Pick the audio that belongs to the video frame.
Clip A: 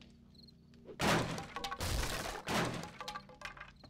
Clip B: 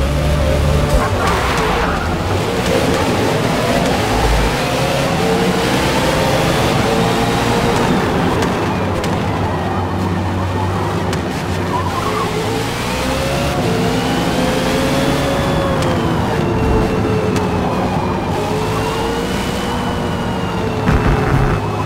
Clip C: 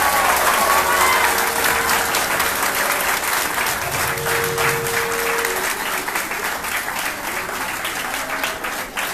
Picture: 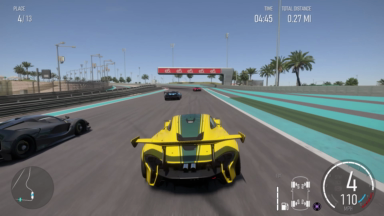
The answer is B